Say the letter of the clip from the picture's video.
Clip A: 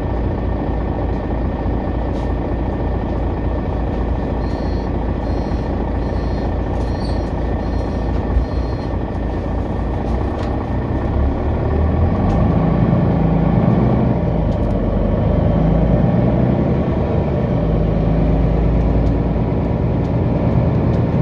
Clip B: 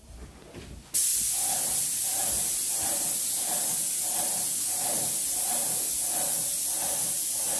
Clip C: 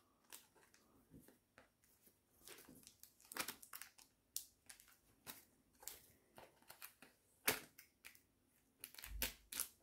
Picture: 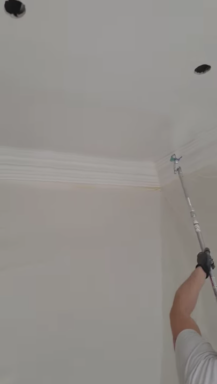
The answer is B